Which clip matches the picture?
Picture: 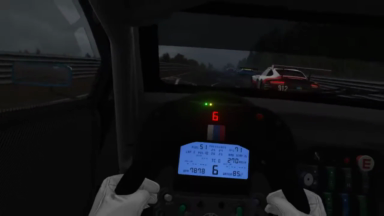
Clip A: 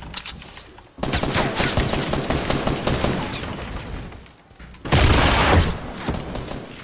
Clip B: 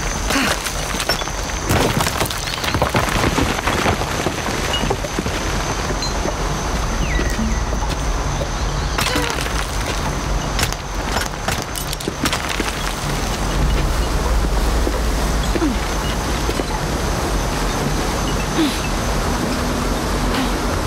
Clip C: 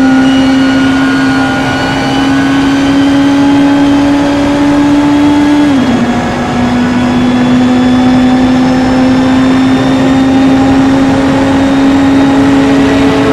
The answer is C